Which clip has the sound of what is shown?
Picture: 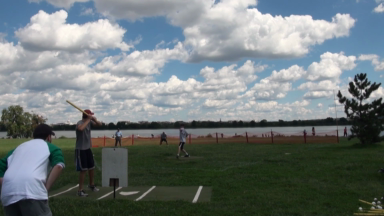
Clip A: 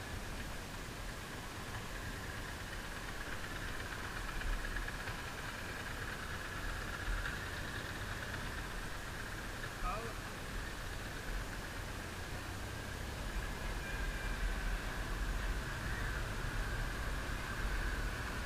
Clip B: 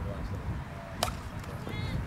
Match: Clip B